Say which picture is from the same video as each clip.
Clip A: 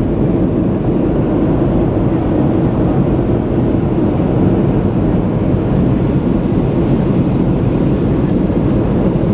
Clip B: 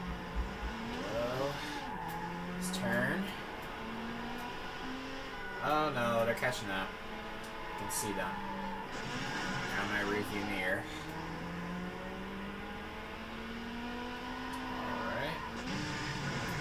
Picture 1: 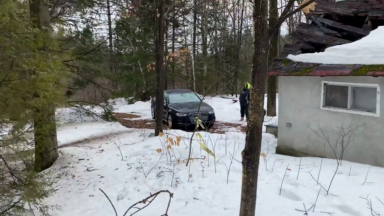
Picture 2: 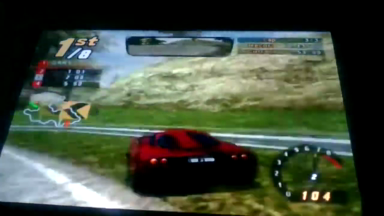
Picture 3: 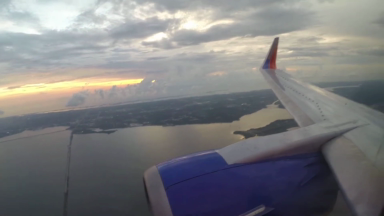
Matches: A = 3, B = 2